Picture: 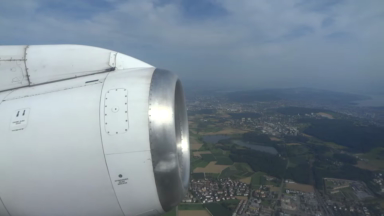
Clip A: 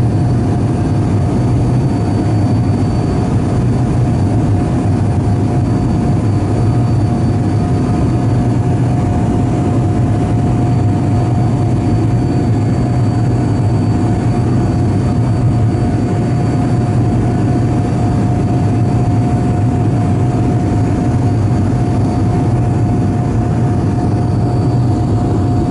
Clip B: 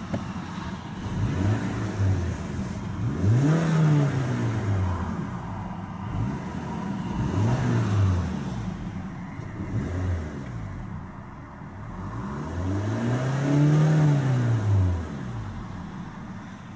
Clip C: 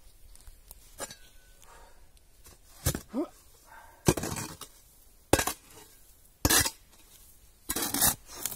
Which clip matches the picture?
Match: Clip A